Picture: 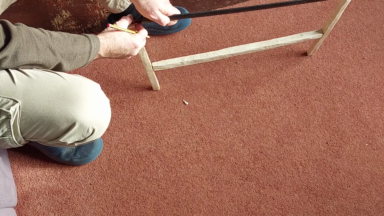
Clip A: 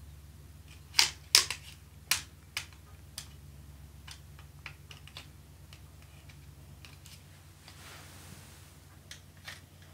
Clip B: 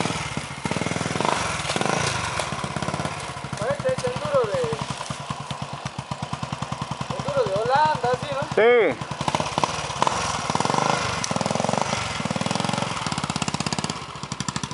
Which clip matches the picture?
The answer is A